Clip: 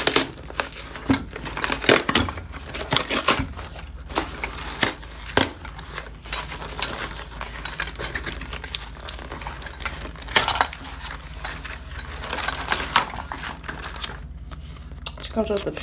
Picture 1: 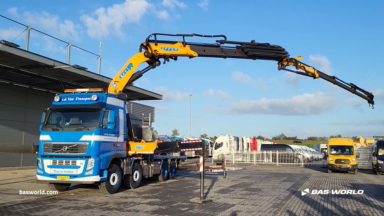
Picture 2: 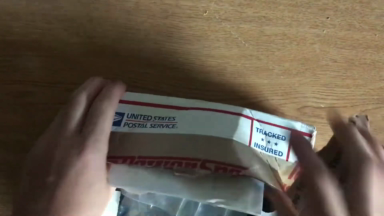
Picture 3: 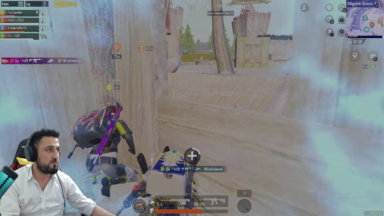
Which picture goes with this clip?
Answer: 2